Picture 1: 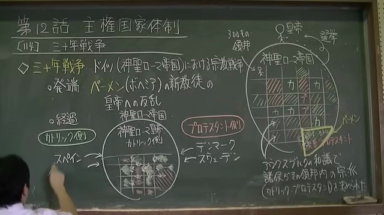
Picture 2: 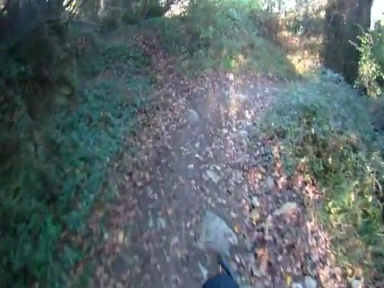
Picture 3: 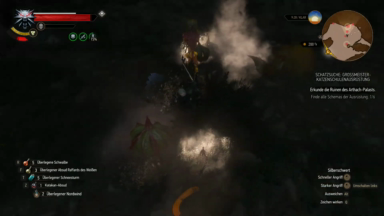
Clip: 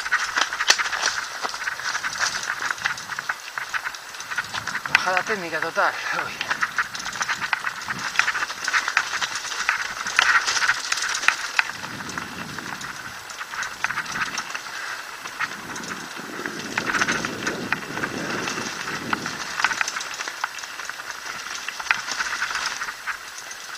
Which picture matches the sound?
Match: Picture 2